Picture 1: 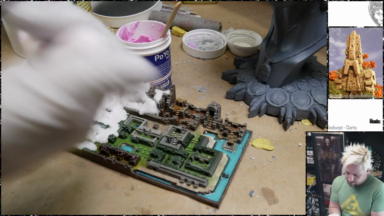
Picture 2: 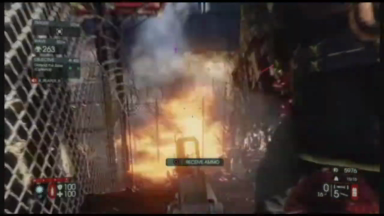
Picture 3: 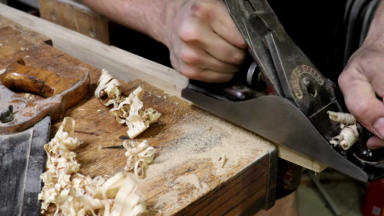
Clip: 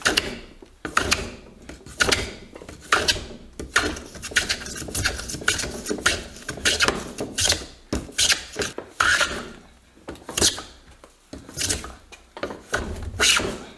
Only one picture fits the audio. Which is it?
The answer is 3